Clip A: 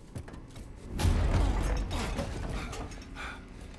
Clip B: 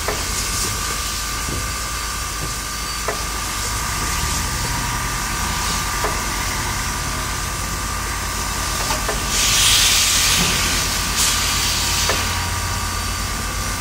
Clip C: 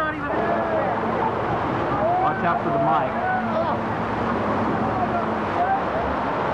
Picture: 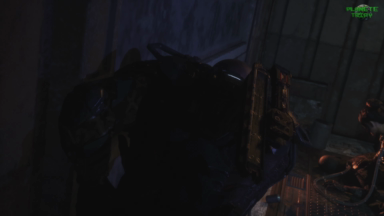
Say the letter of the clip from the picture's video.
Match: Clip A